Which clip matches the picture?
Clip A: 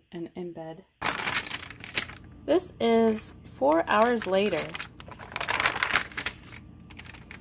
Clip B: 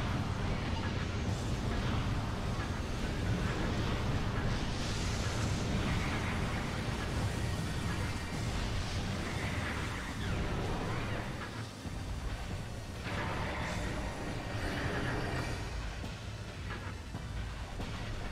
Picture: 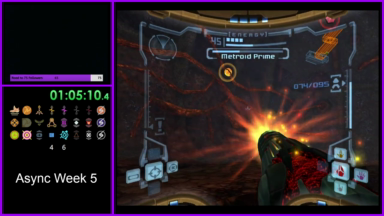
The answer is B